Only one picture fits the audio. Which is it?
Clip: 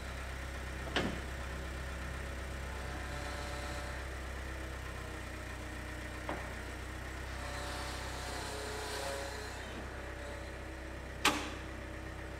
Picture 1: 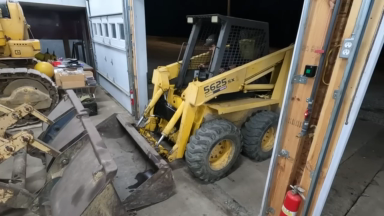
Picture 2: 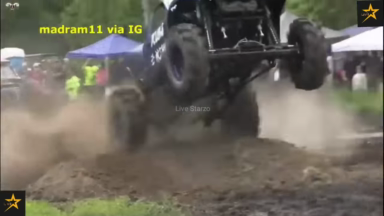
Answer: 1